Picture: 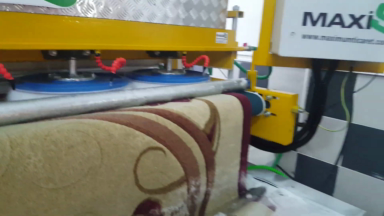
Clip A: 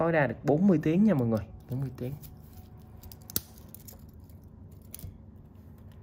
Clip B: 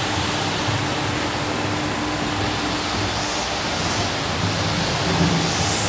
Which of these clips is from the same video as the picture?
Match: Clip B